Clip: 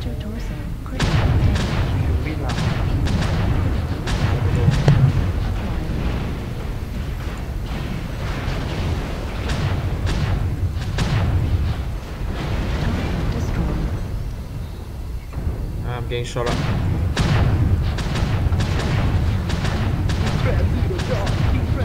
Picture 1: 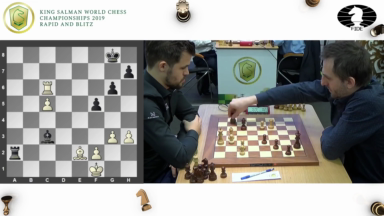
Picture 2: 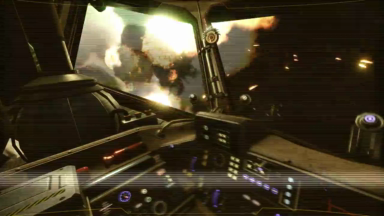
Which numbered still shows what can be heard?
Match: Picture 2